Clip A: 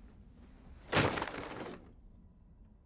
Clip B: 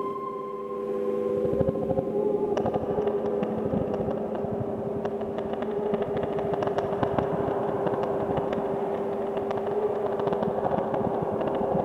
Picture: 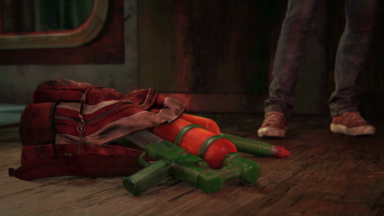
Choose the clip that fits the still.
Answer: A